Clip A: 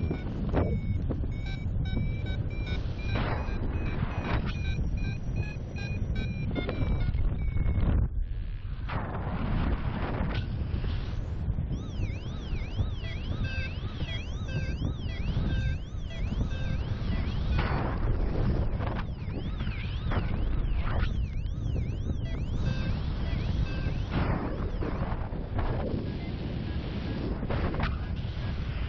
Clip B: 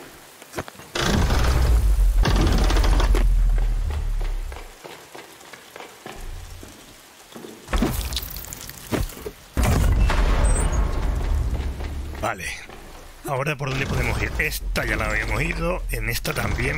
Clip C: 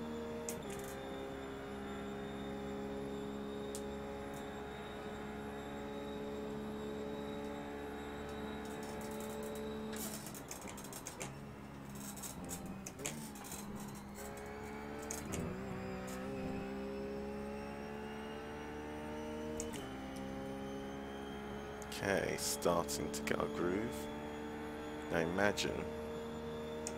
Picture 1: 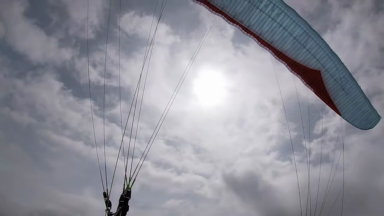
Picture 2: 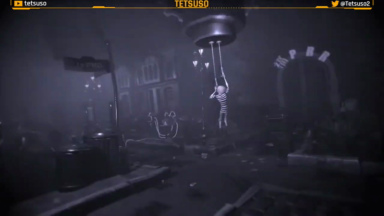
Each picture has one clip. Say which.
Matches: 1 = A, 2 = B